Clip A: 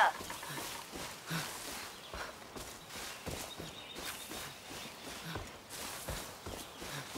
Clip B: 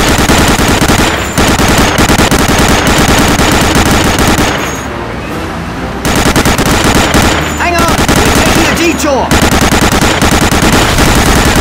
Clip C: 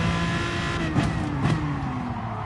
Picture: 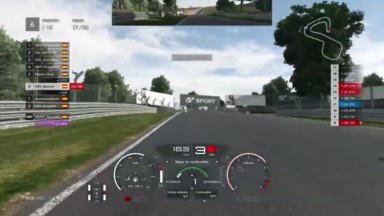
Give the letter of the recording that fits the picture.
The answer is C